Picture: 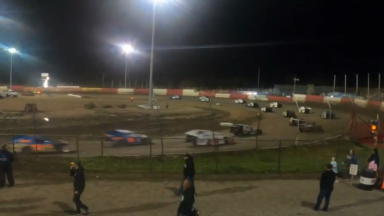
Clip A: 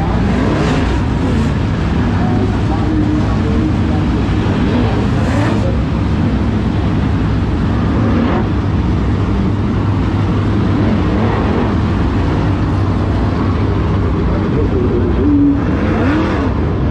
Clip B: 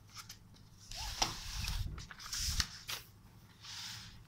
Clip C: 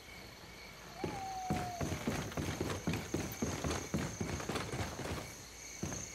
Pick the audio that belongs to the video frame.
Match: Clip A